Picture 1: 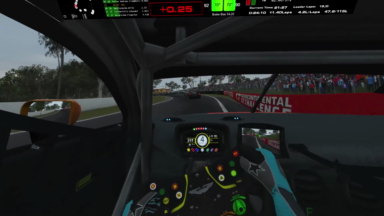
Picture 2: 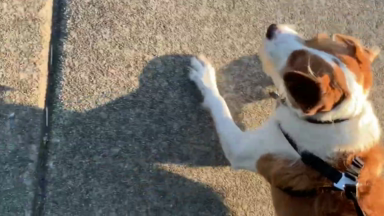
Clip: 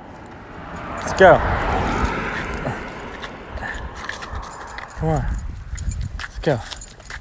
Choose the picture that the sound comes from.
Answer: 2